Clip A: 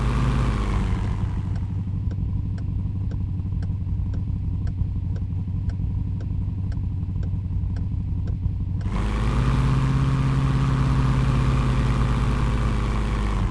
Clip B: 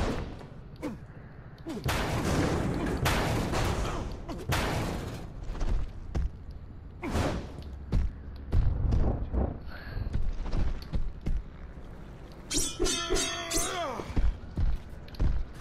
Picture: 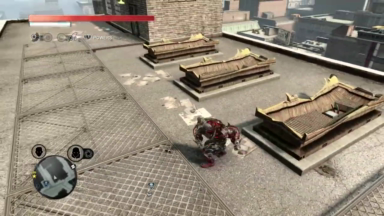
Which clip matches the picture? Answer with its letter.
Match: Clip B